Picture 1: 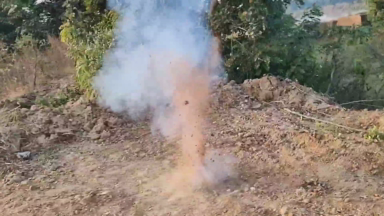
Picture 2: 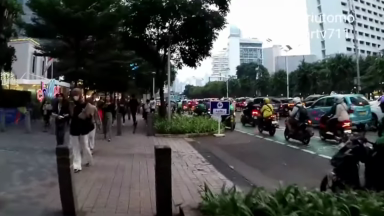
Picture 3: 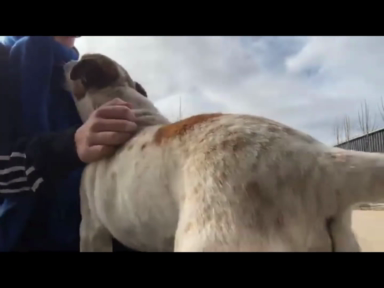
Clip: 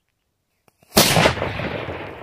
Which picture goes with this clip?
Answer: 1